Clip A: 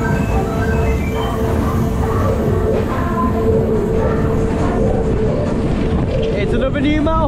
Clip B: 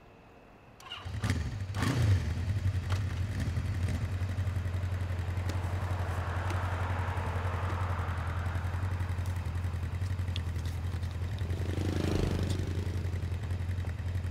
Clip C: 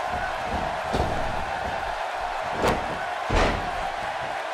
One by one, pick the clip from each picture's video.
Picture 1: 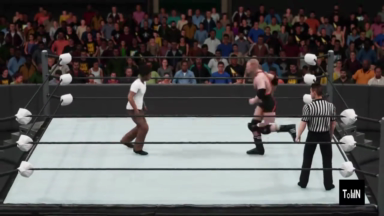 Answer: C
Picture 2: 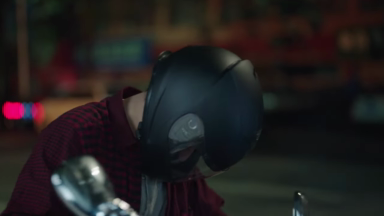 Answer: B